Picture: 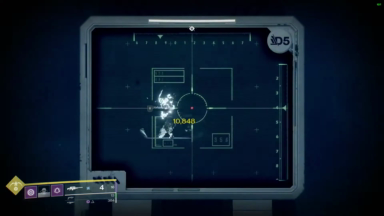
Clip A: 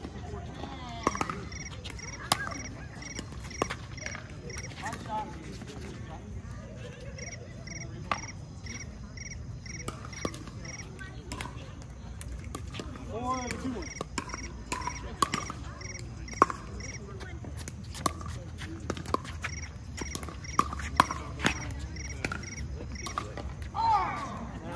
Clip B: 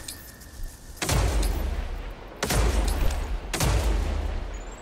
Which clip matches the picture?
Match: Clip B